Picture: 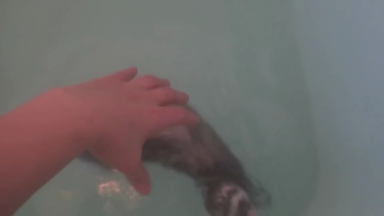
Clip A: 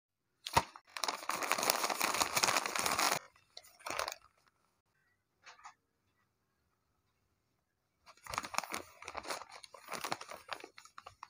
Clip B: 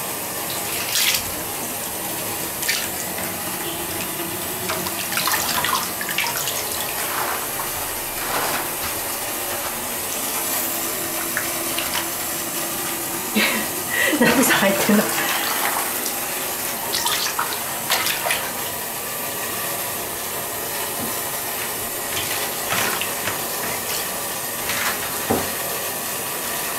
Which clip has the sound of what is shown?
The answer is B